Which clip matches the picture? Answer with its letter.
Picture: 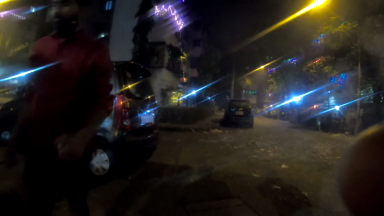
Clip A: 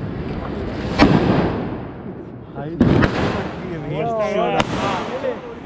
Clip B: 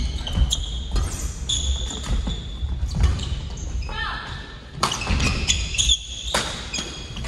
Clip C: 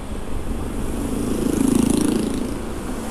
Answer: A